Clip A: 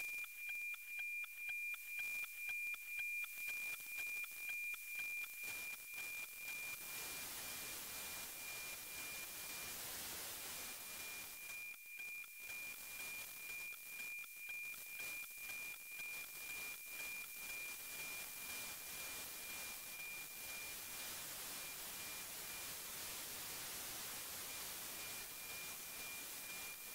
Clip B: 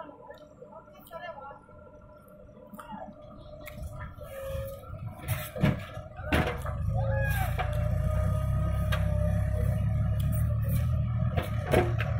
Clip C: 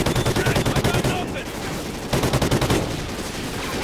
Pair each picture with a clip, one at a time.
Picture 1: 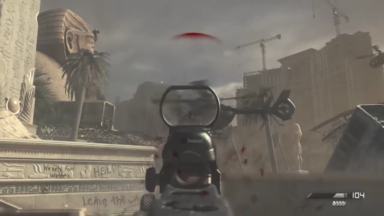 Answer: C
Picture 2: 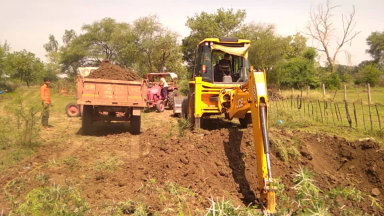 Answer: B